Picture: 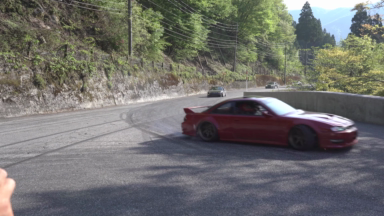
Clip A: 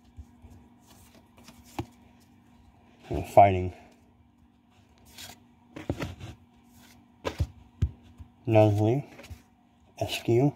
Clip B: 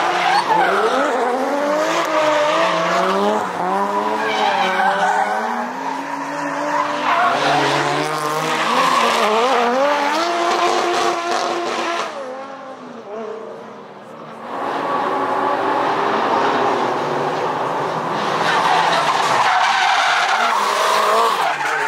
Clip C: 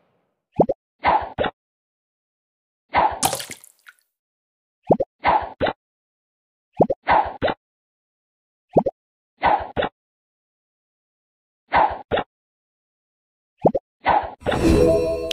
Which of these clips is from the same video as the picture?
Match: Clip B